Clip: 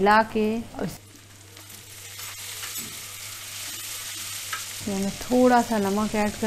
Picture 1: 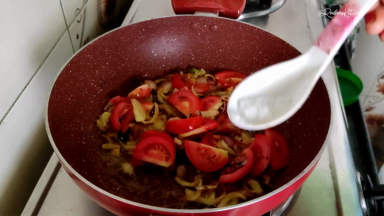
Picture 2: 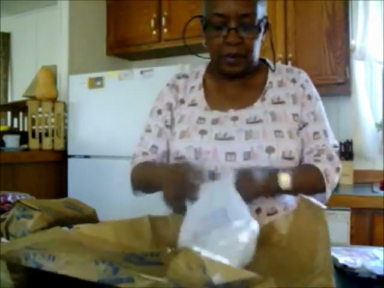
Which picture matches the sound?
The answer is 1